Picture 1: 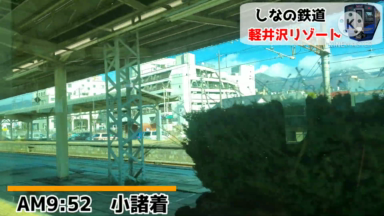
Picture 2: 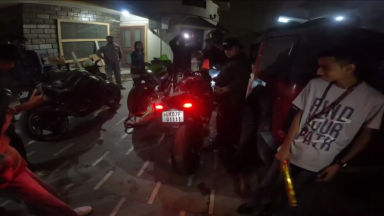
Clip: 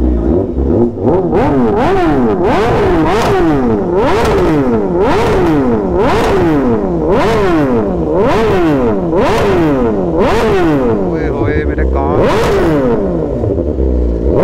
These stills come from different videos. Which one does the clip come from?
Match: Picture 2